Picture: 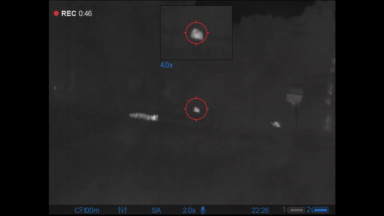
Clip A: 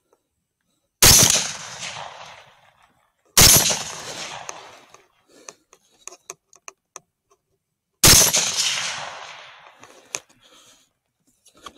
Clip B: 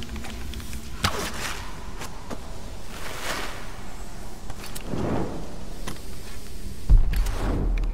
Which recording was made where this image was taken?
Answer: A